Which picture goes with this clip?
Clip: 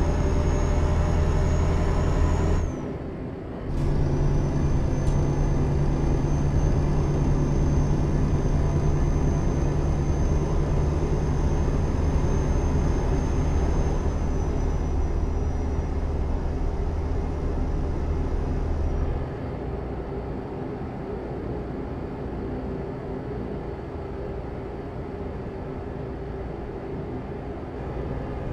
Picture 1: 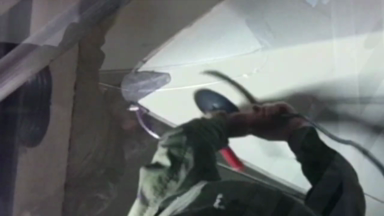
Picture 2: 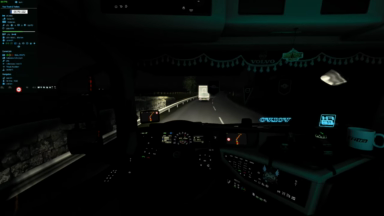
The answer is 2